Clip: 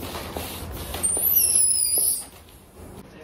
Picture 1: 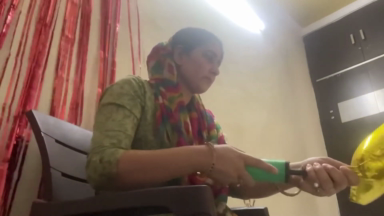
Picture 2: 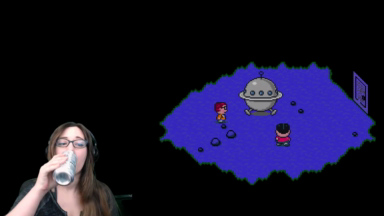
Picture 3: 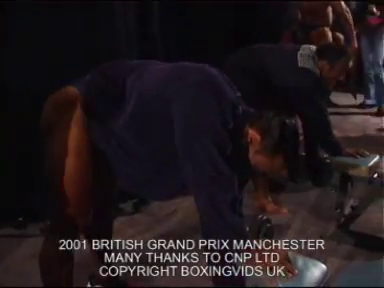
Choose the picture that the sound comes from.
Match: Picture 1